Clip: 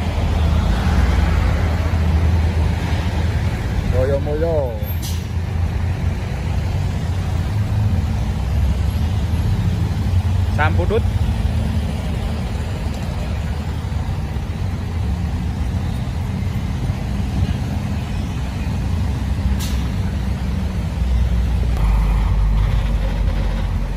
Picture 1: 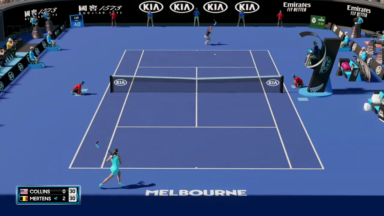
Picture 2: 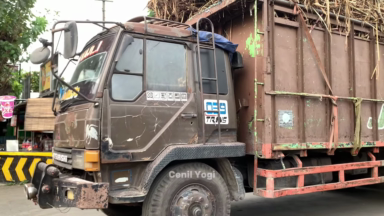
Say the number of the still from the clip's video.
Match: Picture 2